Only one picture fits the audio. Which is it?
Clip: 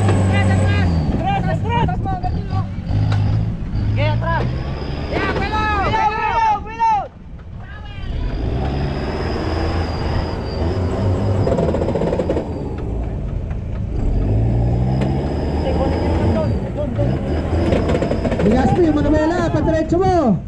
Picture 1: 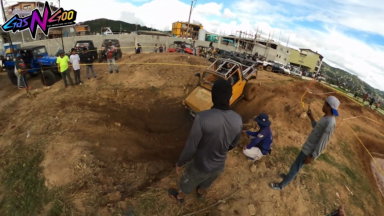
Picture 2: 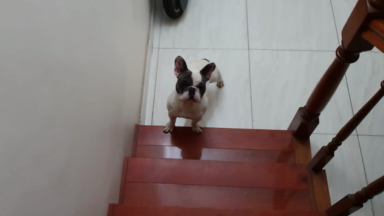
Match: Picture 1